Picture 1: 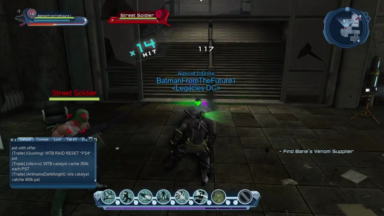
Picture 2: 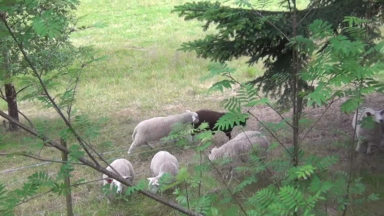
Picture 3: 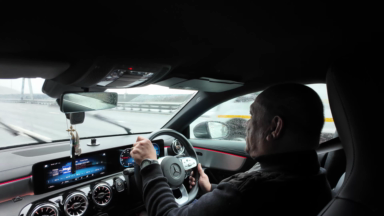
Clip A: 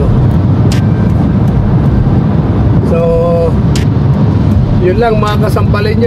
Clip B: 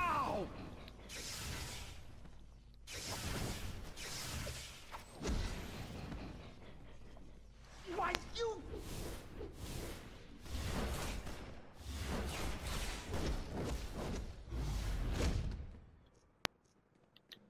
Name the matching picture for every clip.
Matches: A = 3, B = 1